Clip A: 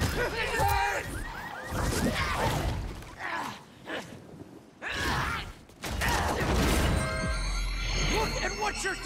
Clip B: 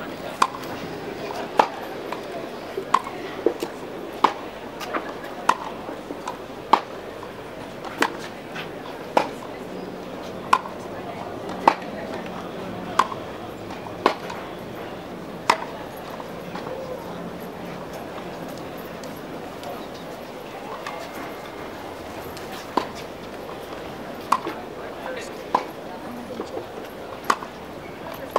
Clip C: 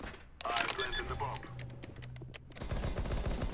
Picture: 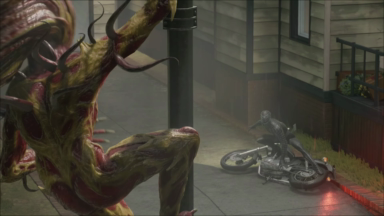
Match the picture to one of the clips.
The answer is A